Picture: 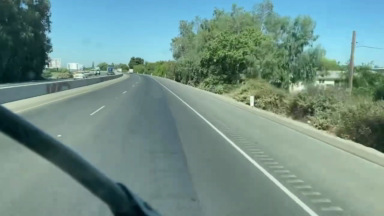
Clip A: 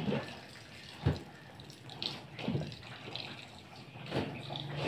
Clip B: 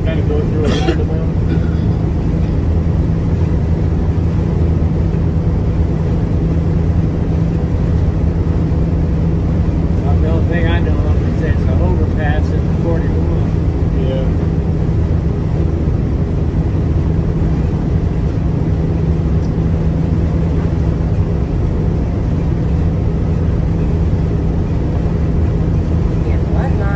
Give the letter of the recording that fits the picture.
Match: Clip B